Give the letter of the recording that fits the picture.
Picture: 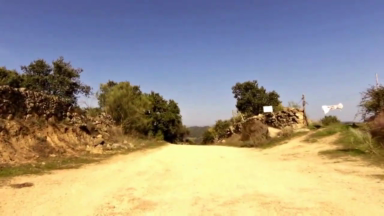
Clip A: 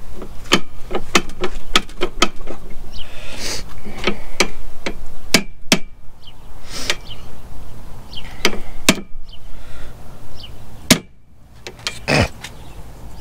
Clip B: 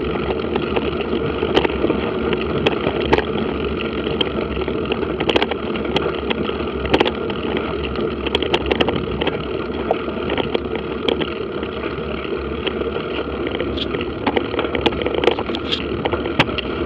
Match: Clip B